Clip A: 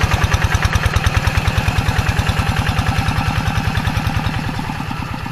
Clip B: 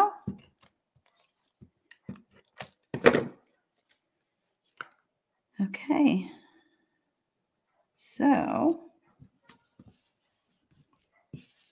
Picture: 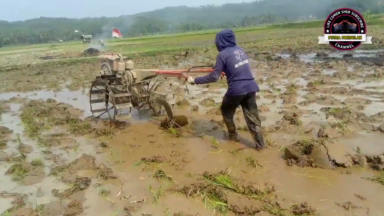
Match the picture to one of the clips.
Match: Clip A